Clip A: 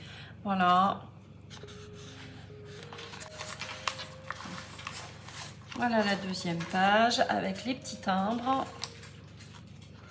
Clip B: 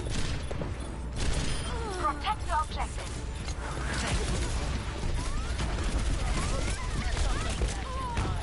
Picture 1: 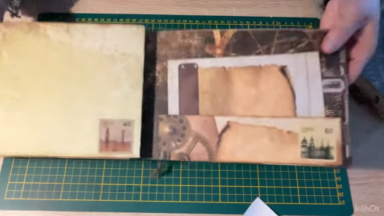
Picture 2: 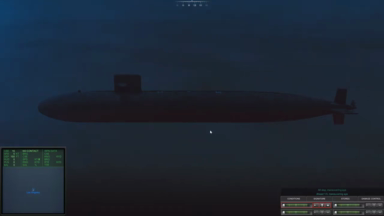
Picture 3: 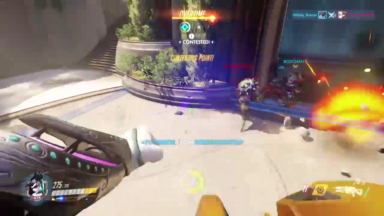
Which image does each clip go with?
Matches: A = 1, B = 3